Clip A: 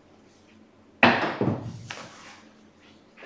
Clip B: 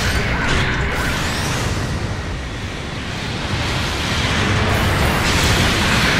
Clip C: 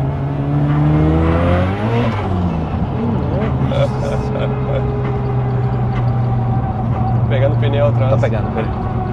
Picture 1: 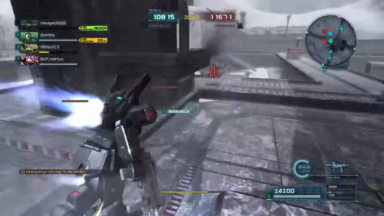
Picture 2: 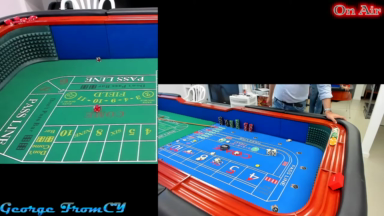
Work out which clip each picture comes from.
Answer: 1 B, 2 A